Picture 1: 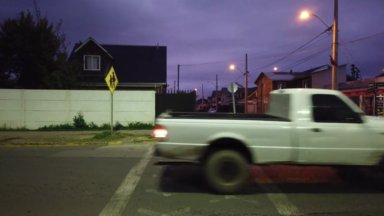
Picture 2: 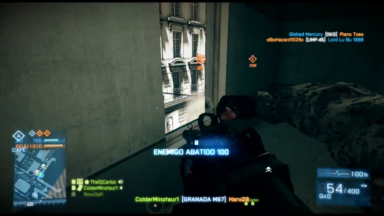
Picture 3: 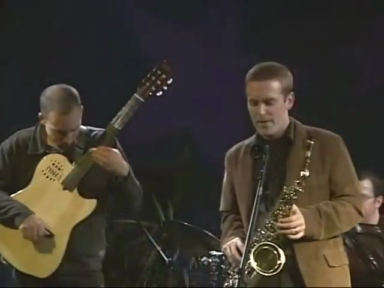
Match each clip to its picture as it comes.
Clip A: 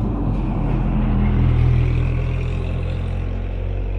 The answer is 1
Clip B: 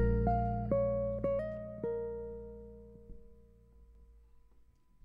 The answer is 3